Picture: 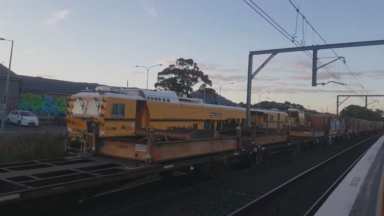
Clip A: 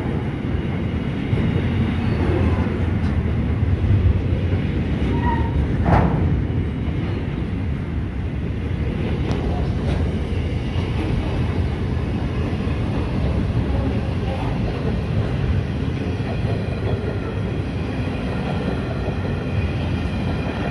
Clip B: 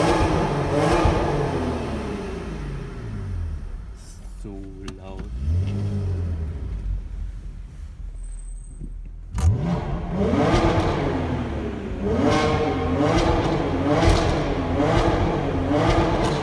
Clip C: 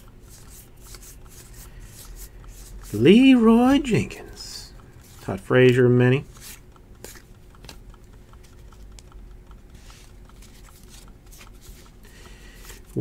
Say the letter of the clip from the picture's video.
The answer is A